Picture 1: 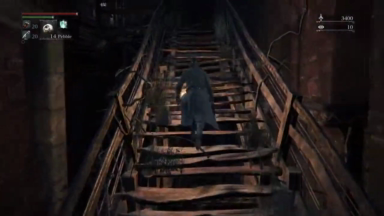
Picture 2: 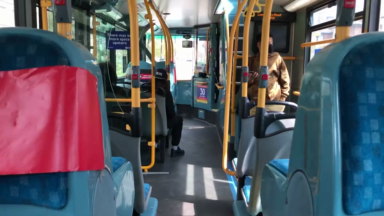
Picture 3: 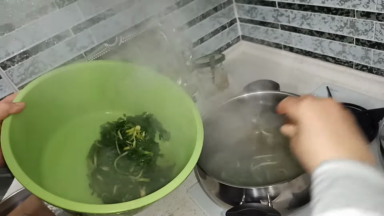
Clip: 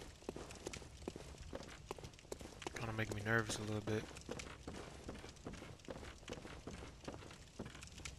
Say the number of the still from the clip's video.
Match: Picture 1